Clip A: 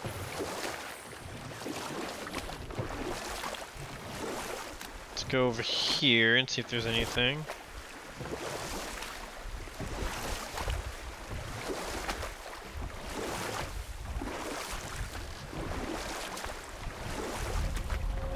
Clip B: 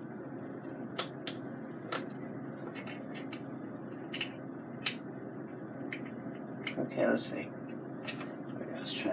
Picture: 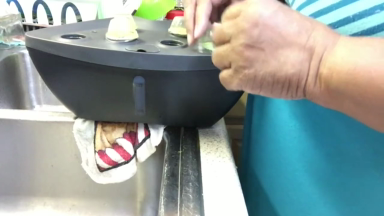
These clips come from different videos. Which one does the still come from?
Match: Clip B